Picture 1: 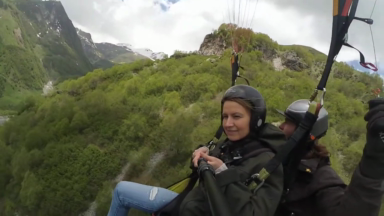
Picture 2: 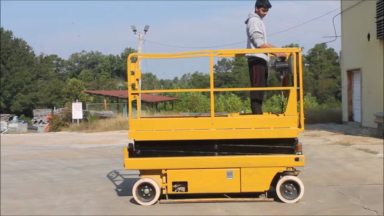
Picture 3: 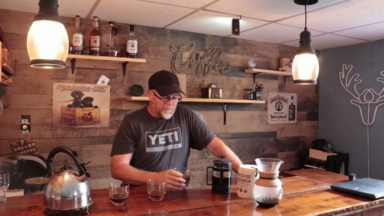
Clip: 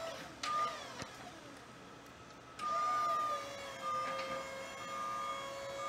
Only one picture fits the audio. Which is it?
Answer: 2